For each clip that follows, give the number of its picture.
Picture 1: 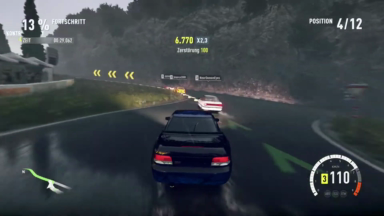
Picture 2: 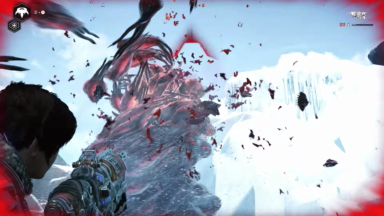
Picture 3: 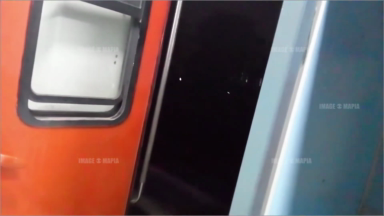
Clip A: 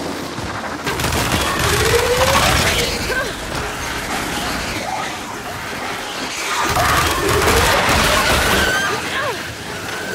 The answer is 2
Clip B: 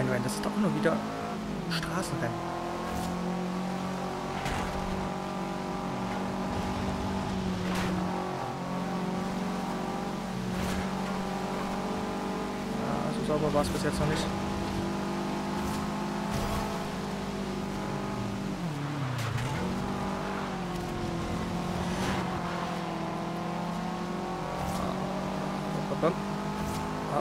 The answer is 1